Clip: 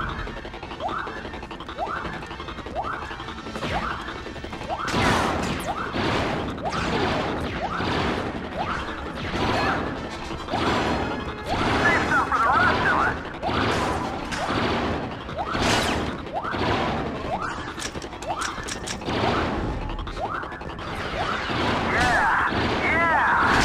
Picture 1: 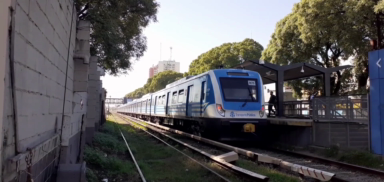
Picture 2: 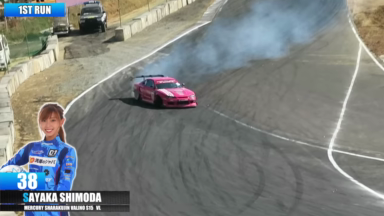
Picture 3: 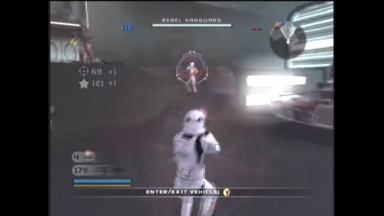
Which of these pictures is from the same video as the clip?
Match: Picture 3